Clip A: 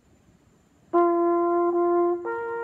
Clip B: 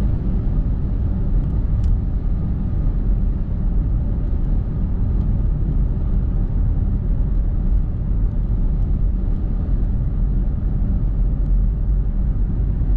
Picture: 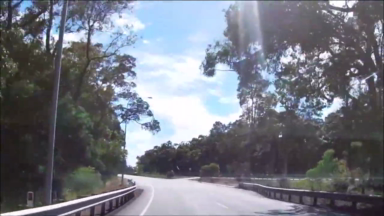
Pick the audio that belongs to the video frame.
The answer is B